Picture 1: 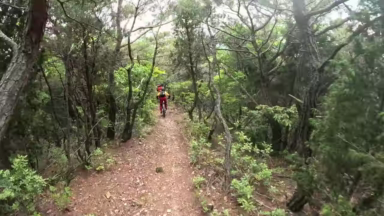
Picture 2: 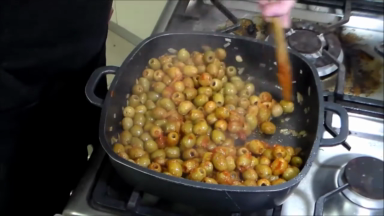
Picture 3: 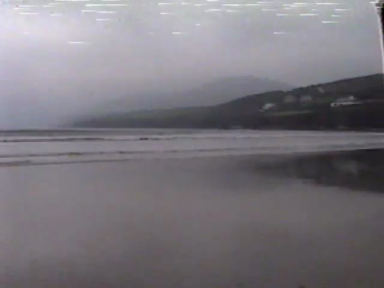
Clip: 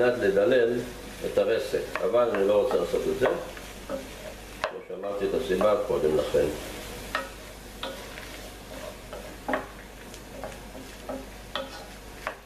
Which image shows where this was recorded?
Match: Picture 2